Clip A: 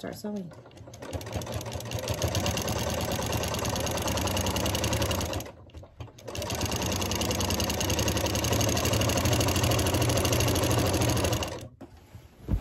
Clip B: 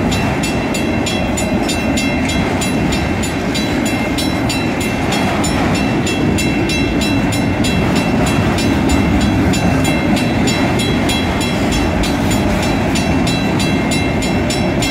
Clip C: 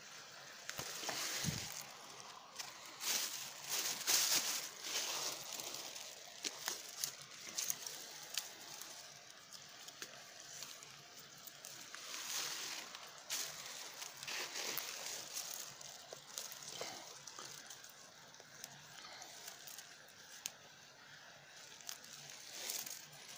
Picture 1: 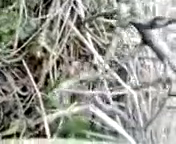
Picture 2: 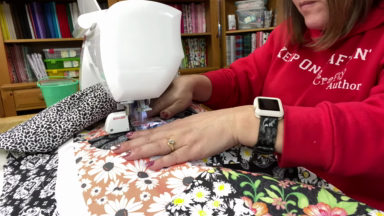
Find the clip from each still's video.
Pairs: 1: C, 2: A